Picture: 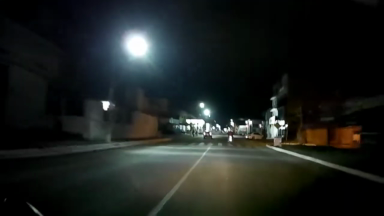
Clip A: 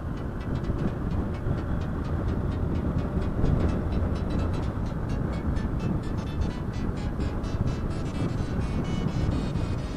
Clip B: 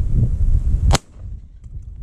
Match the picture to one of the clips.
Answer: A